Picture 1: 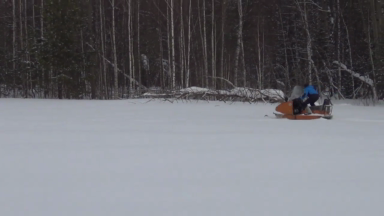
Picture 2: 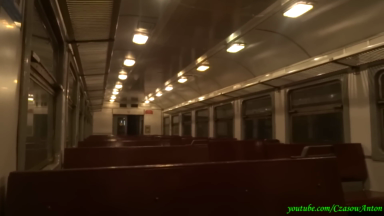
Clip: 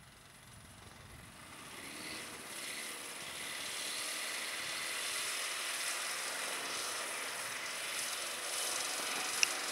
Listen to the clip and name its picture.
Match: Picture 1